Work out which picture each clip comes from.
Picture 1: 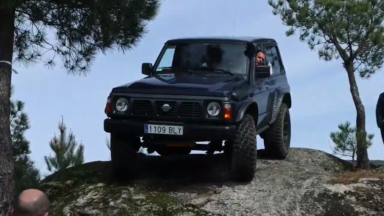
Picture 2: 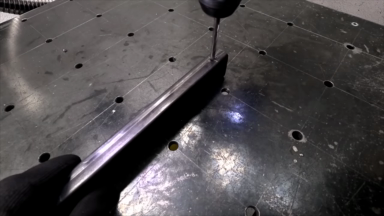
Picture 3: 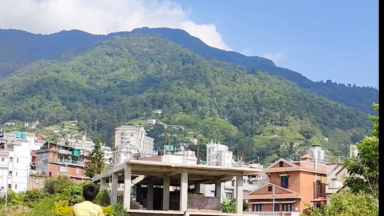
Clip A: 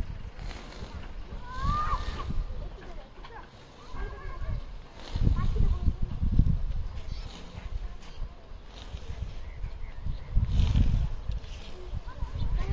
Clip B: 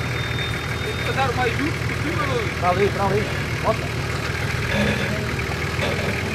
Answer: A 3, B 1